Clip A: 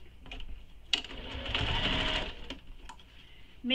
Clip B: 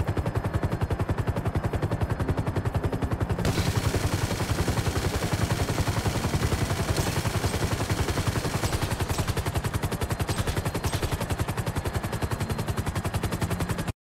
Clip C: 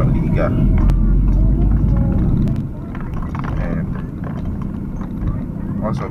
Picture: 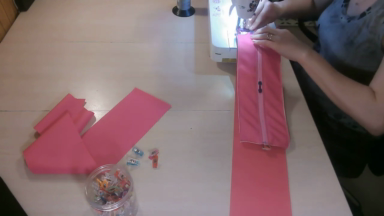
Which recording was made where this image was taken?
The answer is A